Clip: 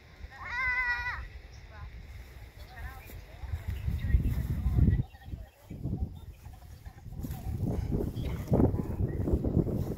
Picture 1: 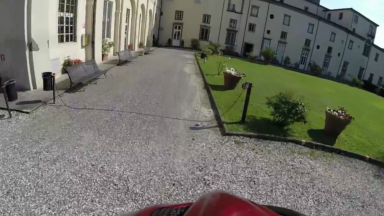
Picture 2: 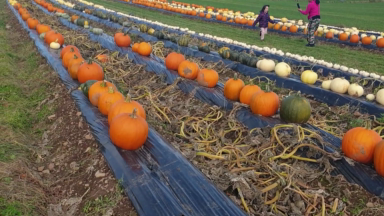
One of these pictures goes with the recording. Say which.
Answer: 2